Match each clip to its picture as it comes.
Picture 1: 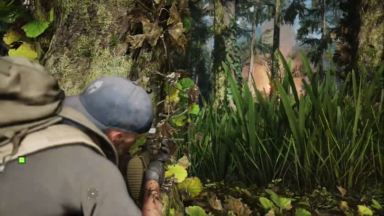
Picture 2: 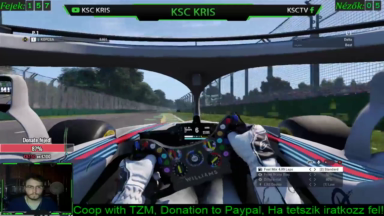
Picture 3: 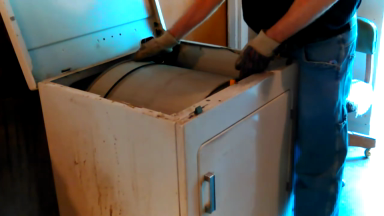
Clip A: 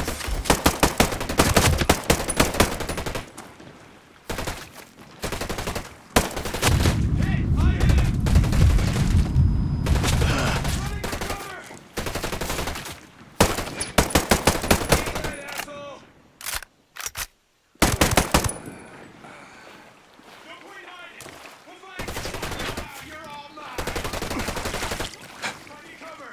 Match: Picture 1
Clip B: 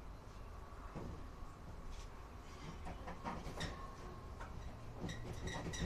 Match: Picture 3